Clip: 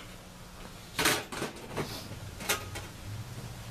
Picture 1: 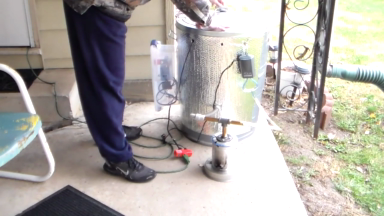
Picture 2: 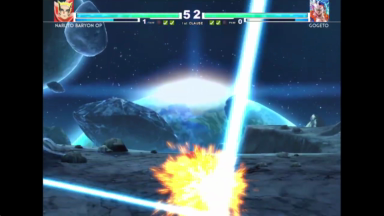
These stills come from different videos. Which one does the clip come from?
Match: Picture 1